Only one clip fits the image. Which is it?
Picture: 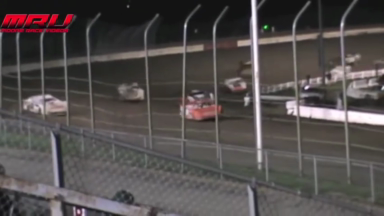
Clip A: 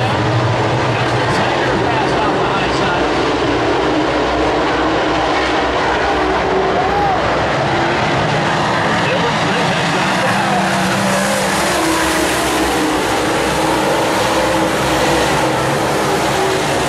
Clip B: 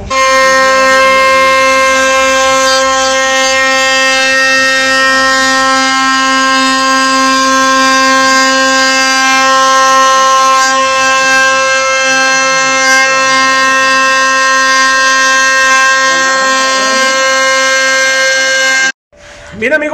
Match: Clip A